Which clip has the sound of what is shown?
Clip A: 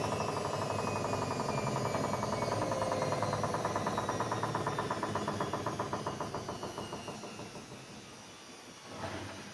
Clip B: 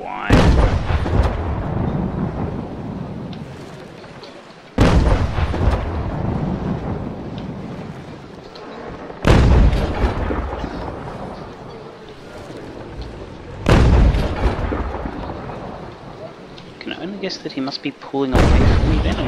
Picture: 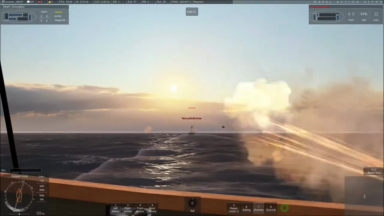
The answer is B